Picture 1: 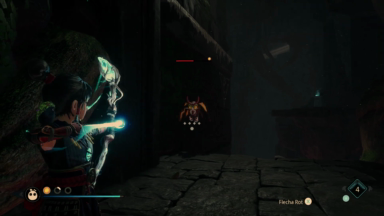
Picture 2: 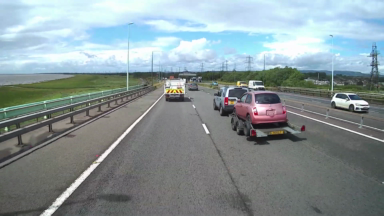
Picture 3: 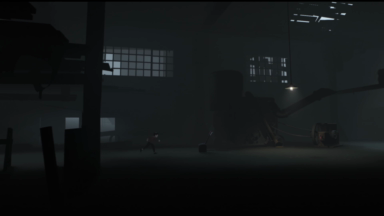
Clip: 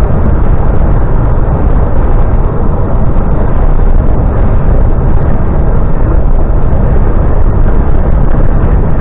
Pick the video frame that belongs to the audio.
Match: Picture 2